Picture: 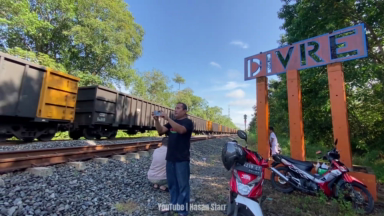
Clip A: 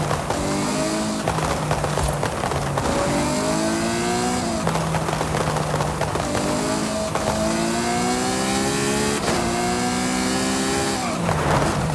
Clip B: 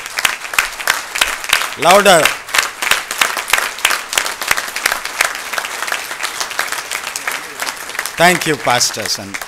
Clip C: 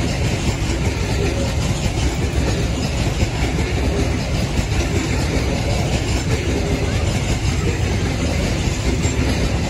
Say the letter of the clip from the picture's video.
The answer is C